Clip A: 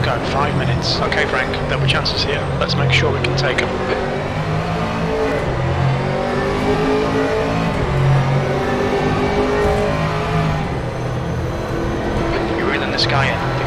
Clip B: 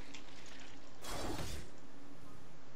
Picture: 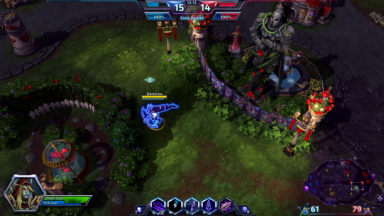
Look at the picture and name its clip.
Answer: B